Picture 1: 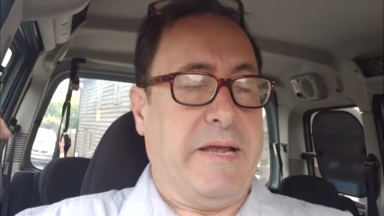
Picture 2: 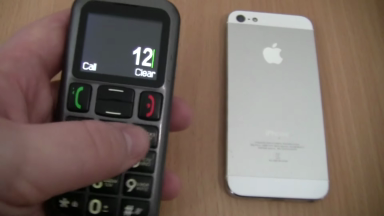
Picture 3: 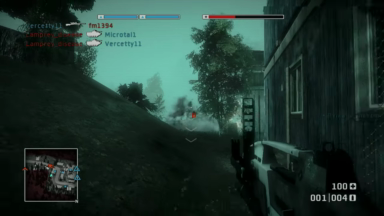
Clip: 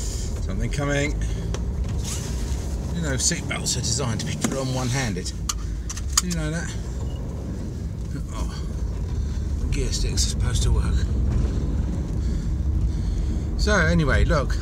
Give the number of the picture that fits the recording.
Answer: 1